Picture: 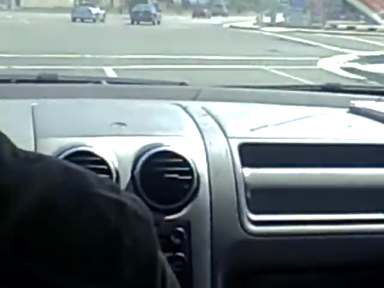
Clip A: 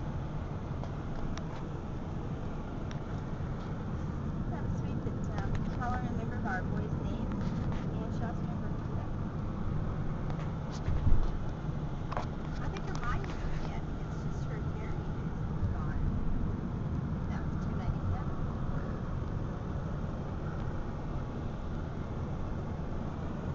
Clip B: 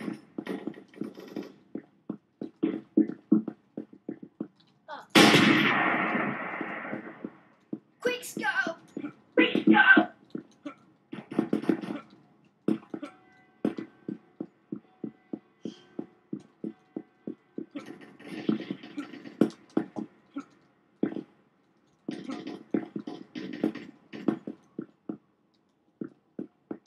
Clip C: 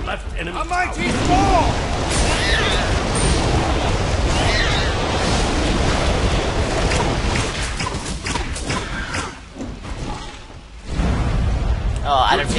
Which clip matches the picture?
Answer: A